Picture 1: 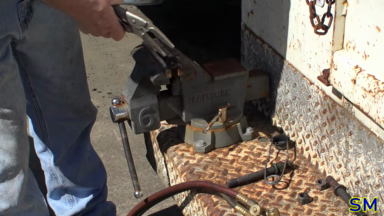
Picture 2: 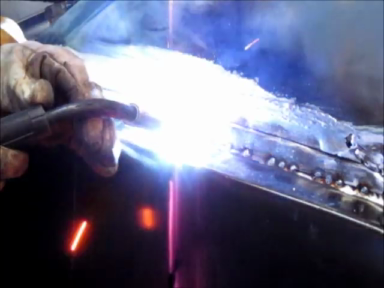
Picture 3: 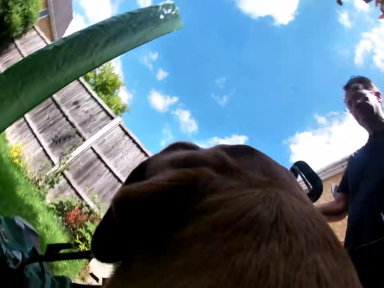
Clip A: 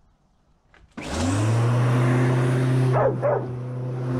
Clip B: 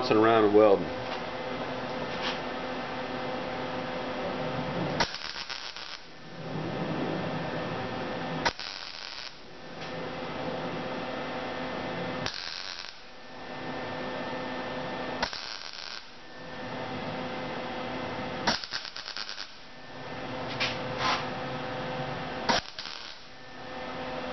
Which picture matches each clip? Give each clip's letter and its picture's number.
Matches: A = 3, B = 2